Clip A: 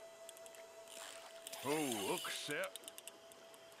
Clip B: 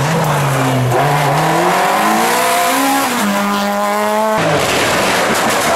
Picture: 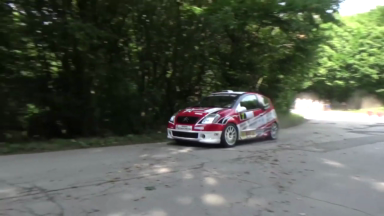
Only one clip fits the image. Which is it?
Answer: B